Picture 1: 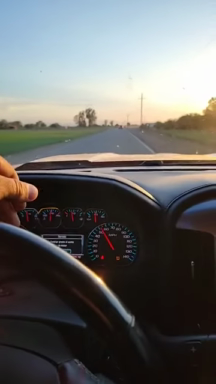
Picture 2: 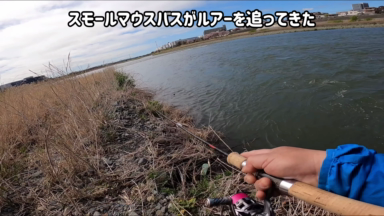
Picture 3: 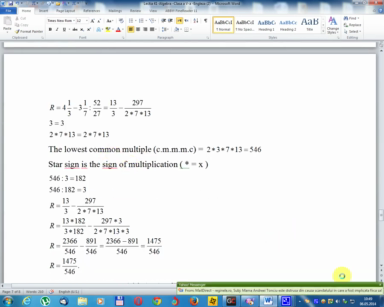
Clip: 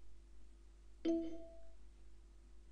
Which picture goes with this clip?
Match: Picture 3